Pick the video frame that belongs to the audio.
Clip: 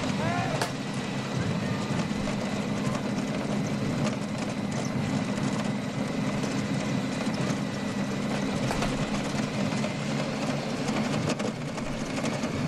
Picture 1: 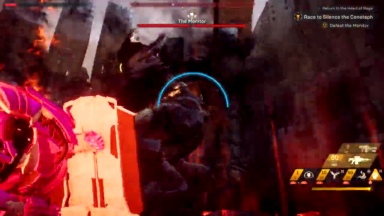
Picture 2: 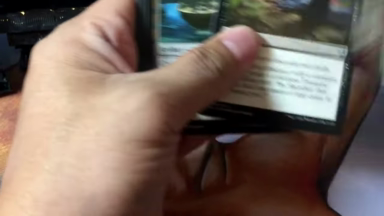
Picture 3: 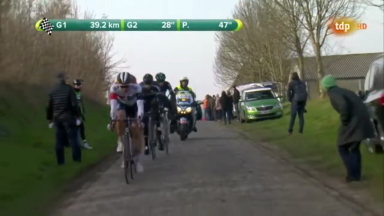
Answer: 3